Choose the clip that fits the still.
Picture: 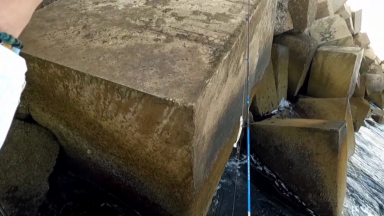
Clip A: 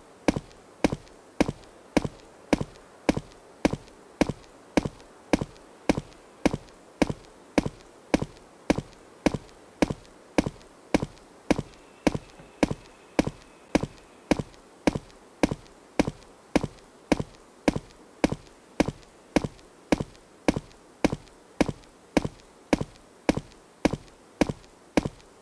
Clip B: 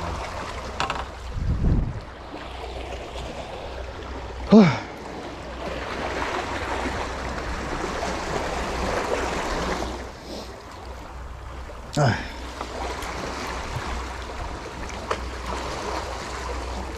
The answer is B